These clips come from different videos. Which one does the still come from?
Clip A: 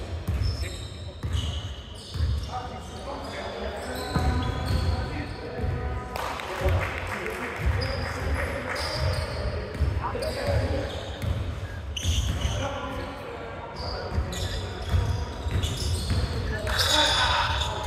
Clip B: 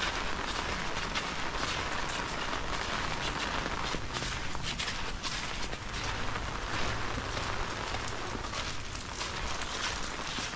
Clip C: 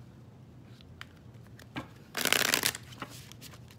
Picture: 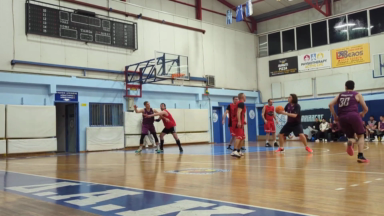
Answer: A